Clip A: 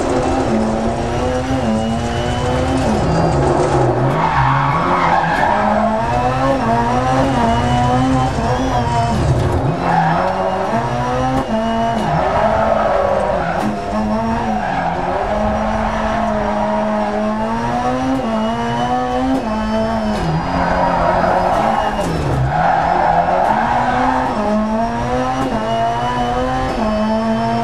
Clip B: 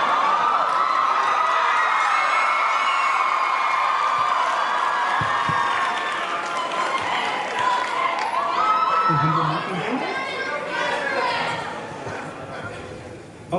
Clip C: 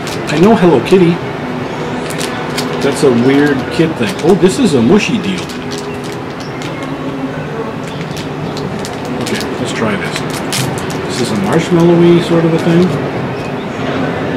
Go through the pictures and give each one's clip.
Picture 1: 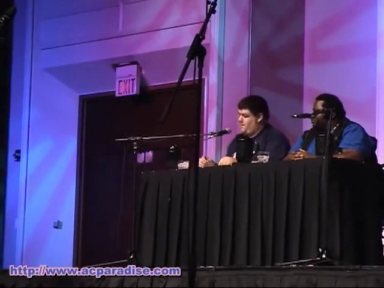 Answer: B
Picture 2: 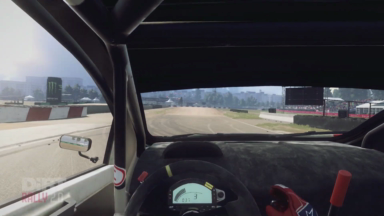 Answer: A